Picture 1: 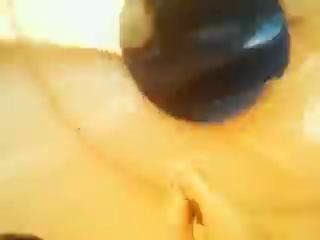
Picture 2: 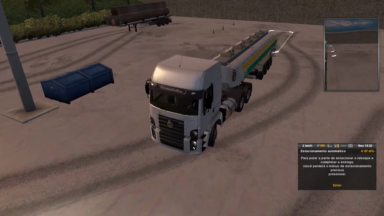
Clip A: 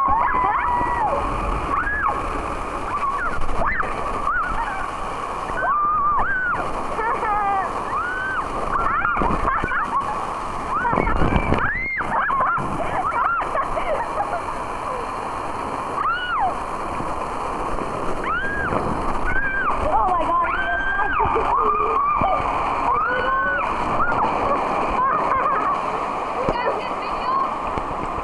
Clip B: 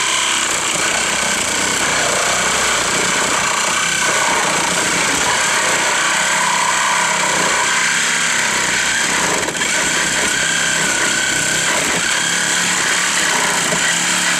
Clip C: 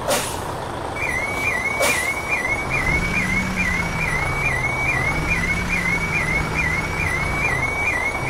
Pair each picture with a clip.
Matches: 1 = A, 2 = C